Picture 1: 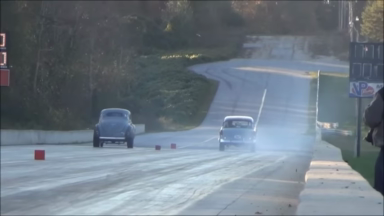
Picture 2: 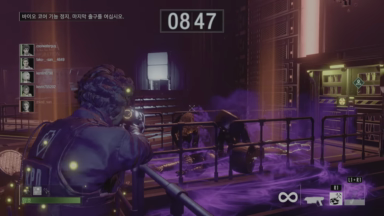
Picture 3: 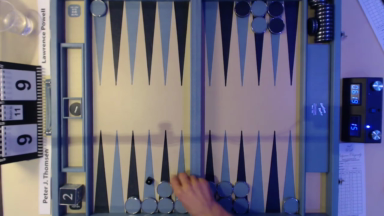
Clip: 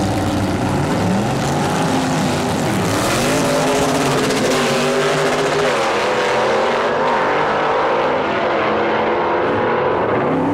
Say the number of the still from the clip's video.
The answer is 1